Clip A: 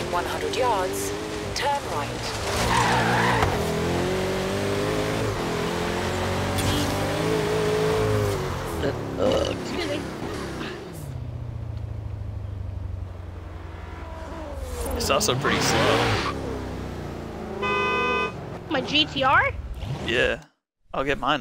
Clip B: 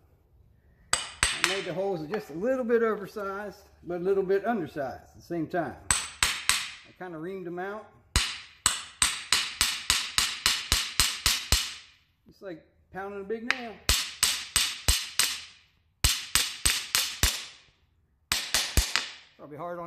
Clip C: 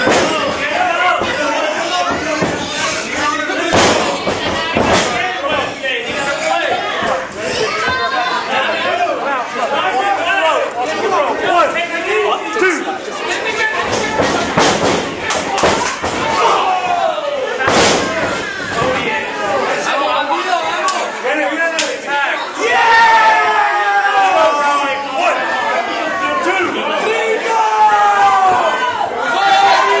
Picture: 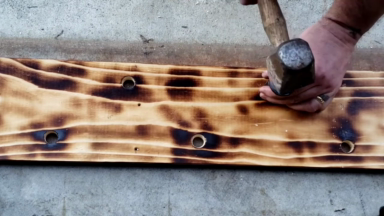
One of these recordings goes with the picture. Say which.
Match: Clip B